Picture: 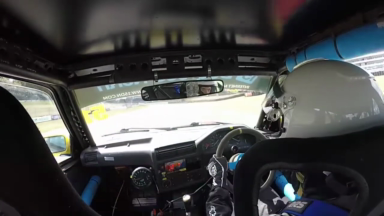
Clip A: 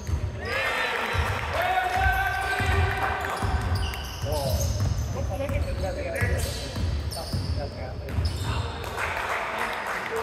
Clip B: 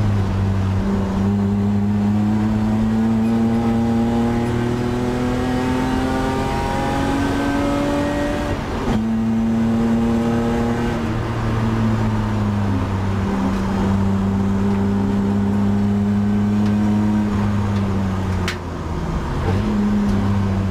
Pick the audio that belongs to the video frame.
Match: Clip B